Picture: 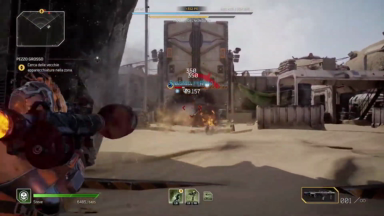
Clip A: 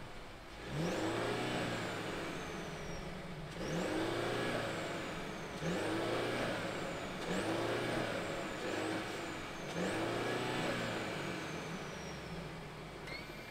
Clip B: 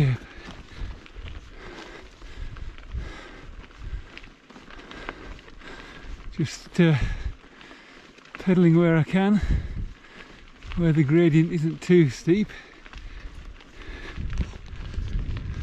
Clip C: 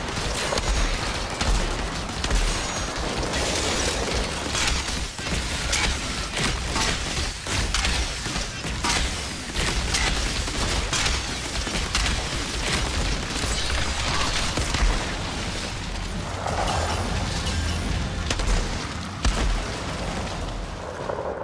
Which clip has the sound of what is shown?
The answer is C